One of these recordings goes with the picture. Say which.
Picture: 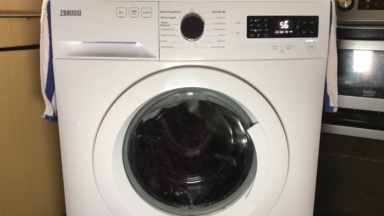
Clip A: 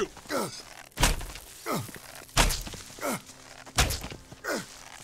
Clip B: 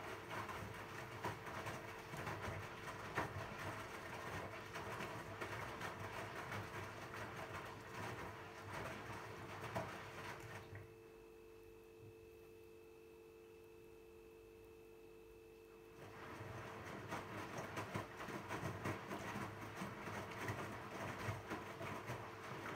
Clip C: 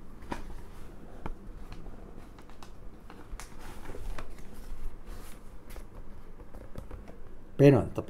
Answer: B